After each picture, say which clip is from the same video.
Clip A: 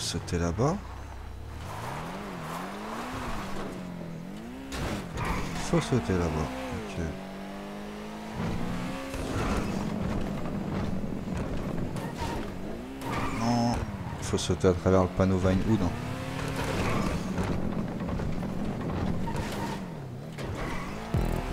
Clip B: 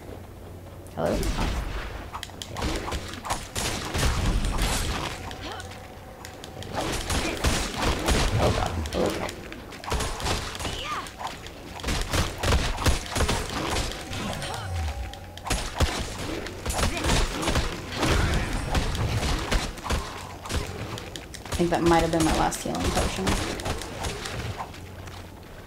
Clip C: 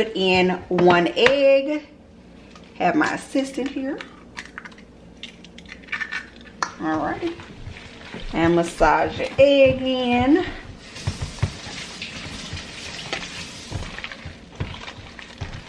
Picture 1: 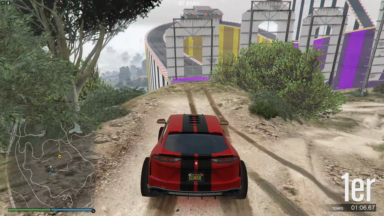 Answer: A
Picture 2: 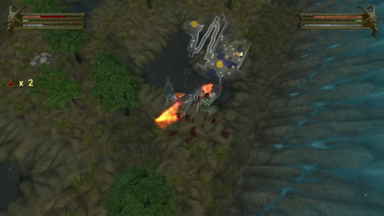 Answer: B